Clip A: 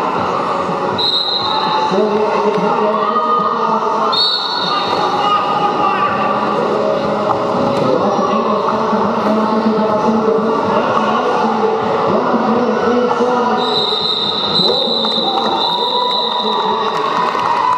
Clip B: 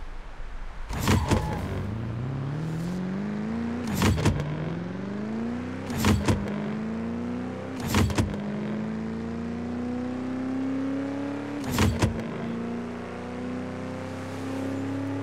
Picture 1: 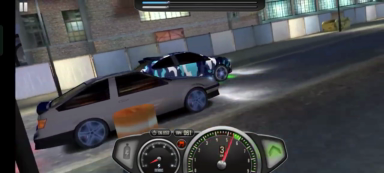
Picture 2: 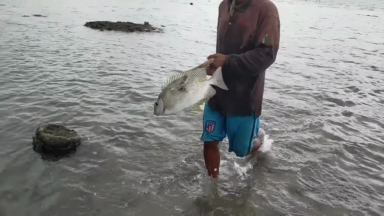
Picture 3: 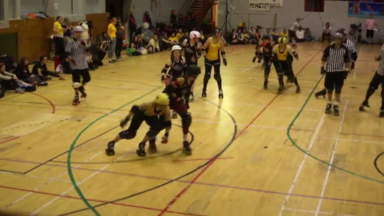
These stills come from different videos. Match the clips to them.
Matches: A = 3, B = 1